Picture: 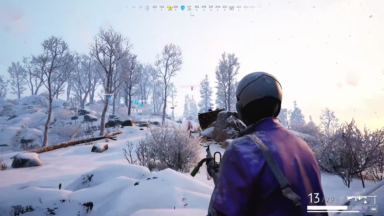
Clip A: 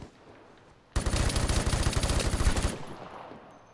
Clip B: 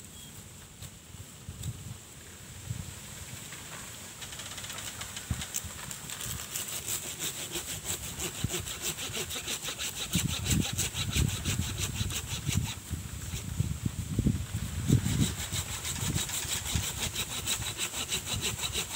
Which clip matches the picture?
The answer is A